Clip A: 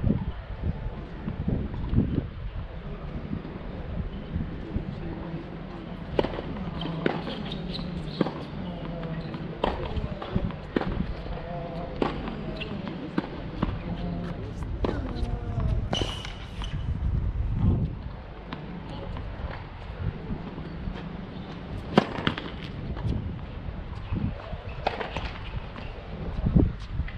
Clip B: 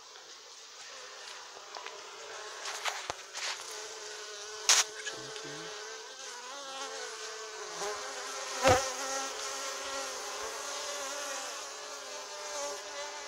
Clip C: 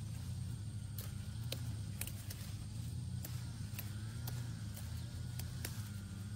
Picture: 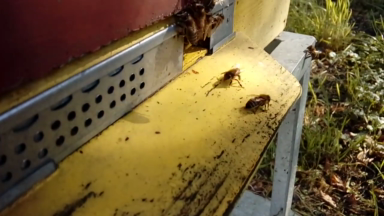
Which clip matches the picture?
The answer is B